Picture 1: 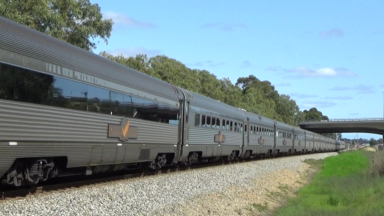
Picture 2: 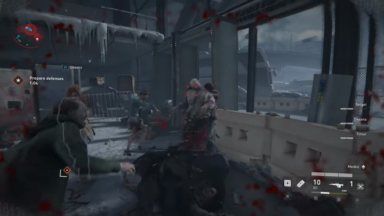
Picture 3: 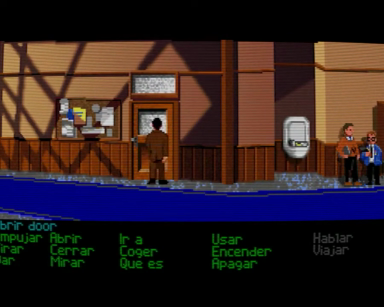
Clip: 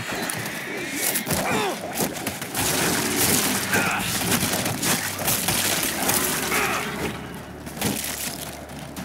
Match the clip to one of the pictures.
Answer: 2